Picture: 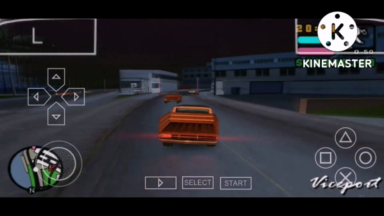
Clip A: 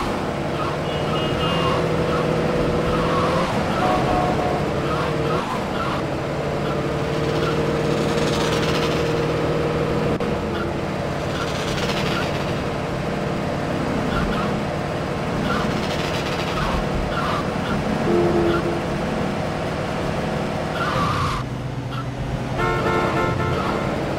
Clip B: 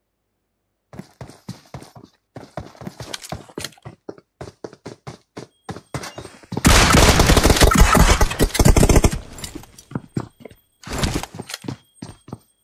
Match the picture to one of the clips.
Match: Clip A